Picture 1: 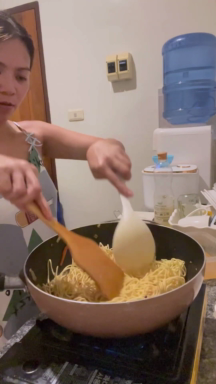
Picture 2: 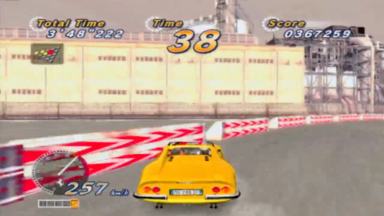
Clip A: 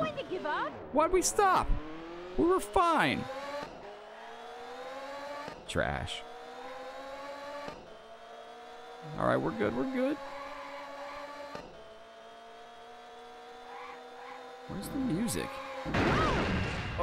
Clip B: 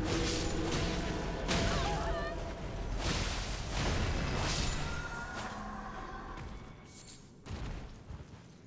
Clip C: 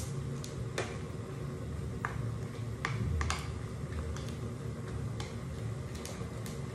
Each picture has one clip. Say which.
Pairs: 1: C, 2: A